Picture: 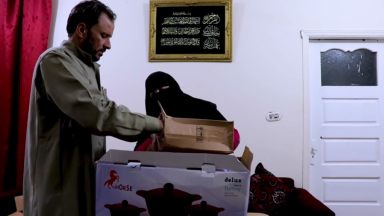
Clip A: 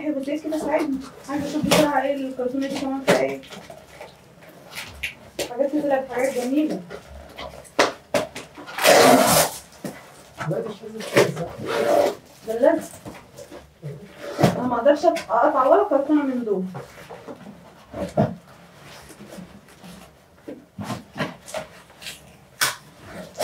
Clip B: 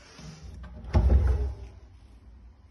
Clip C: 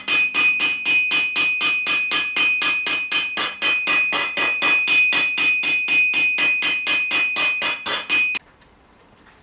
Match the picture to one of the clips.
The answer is A